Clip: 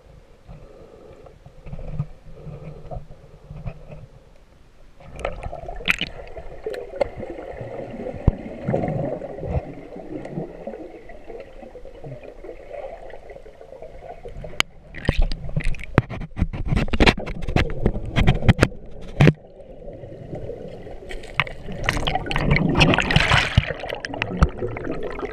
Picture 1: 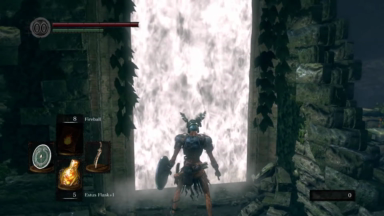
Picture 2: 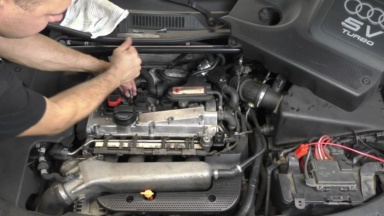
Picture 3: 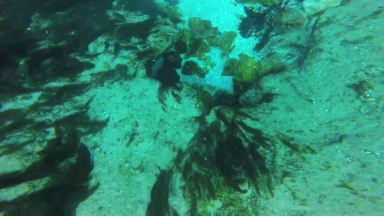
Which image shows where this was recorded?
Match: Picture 3